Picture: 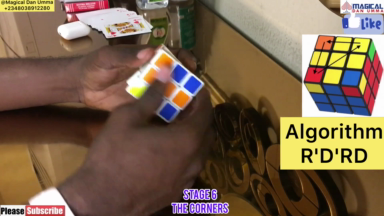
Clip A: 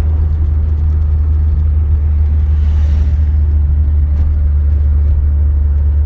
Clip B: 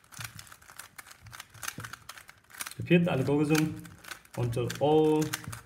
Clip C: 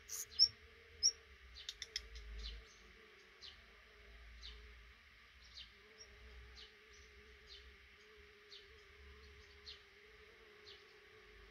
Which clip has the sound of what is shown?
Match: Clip B